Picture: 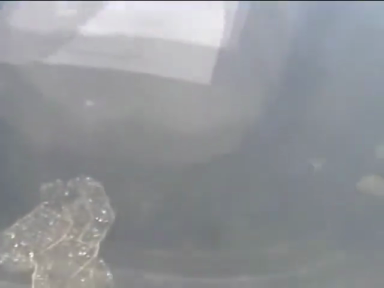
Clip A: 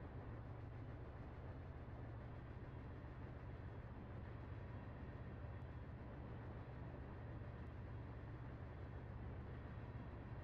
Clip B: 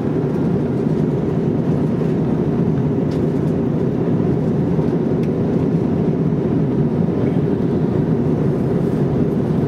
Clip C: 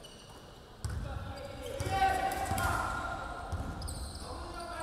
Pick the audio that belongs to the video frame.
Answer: B